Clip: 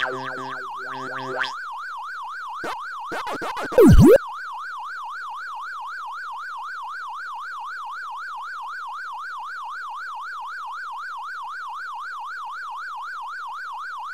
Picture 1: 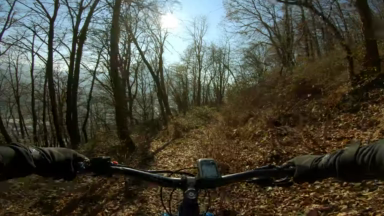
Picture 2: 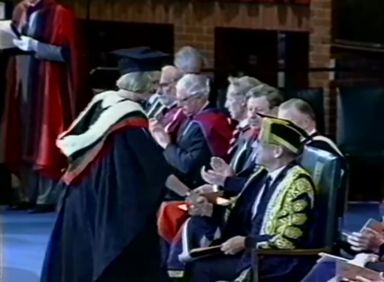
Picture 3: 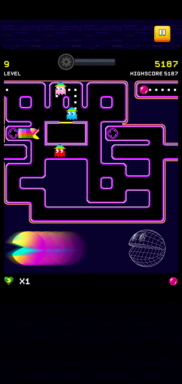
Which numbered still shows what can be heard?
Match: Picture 3